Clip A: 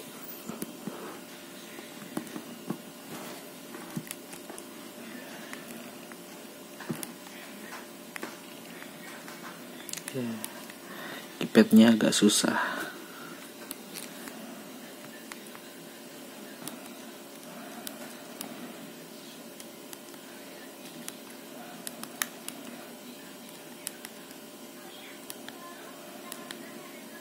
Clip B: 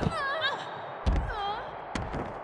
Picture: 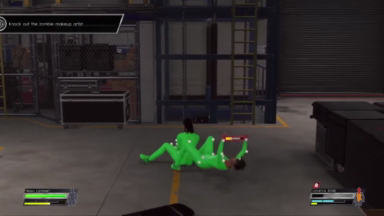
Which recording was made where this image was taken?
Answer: B